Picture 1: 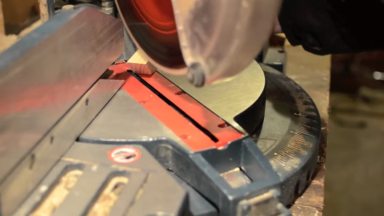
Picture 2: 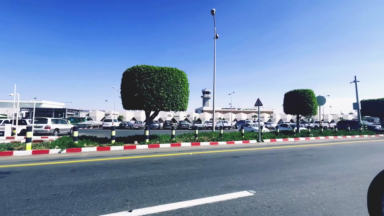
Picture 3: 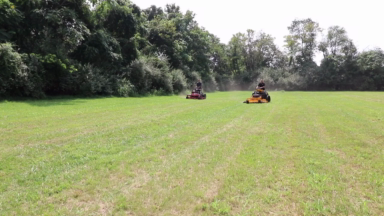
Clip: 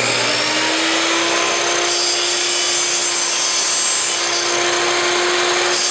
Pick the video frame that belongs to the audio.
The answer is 1